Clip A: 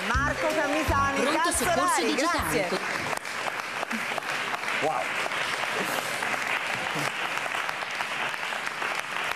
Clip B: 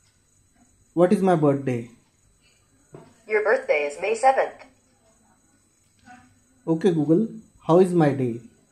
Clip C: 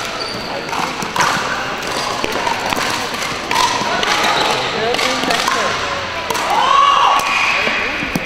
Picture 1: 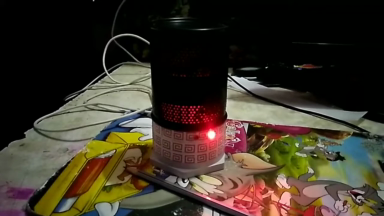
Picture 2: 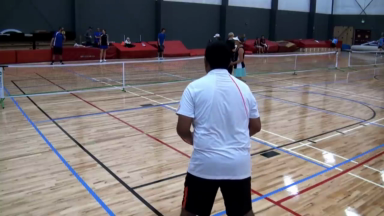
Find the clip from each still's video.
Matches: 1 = B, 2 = C